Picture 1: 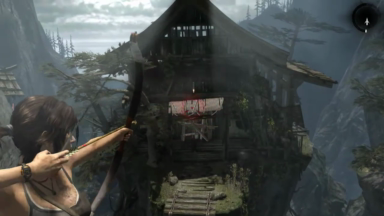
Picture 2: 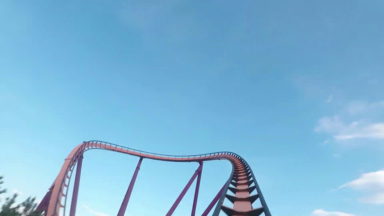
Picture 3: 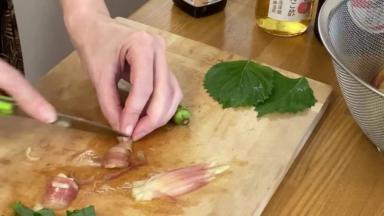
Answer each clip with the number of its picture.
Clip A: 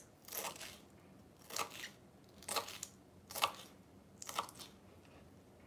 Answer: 3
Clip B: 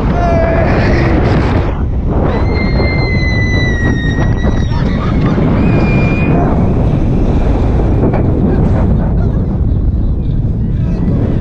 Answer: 2